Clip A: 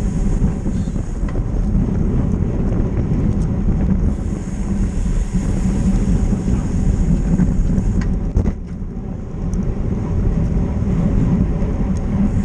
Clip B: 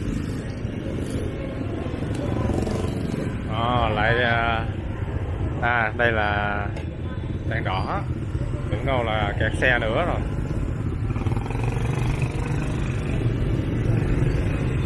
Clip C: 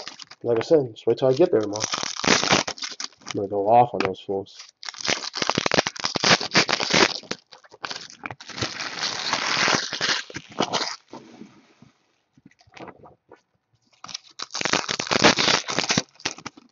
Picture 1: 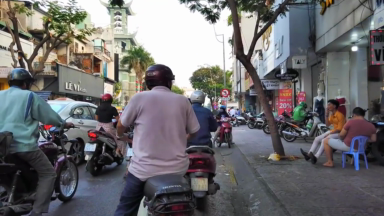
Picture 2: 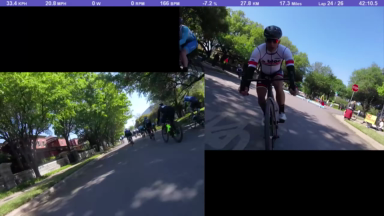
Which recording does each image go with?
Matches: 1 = B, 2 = A